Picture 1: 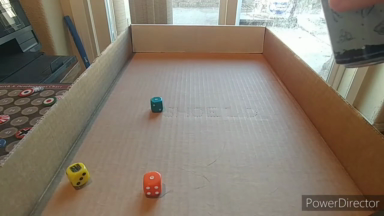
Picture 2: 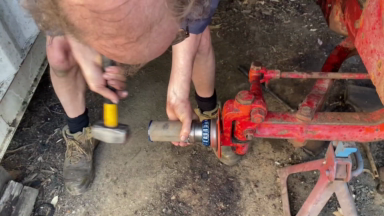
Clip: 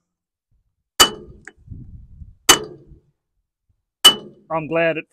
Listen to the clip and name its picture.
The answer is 2